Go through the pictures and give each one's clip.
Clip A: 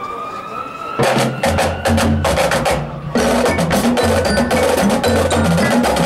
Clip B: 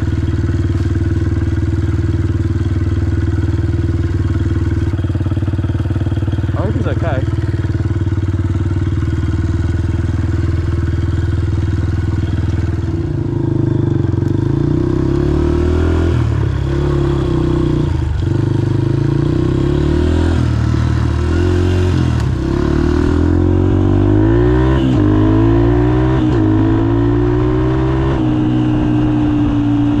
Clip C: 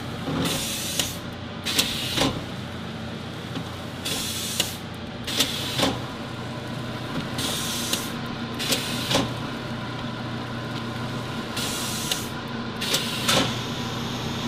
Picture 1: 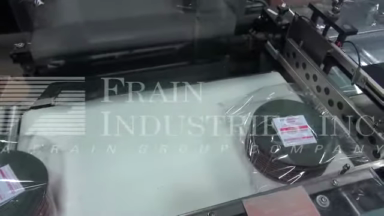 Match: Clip C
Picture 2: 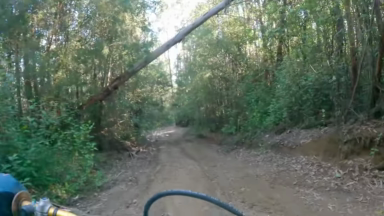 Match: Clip B